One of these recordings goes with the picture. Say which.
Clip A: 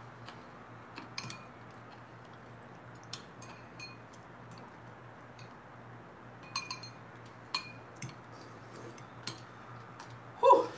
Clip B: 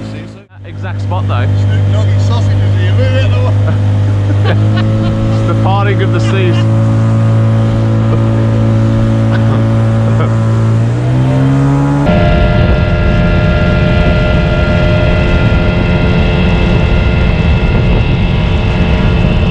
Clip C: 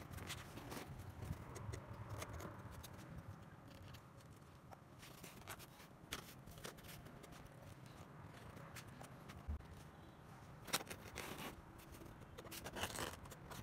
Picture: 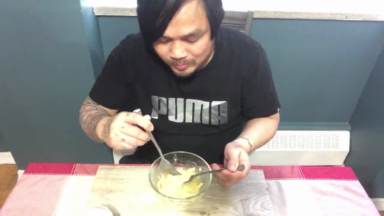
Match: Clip A